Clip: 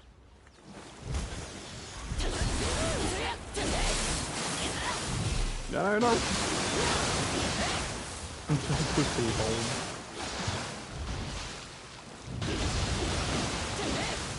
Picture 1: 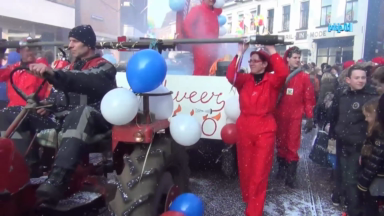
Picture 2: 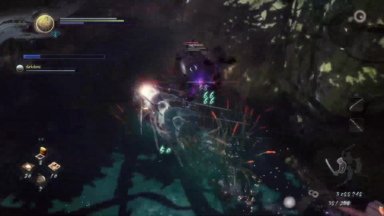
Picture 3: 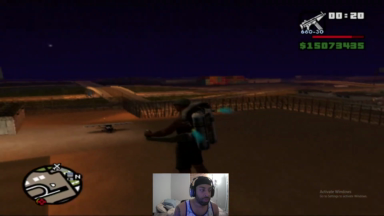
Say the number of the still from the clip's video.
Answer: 2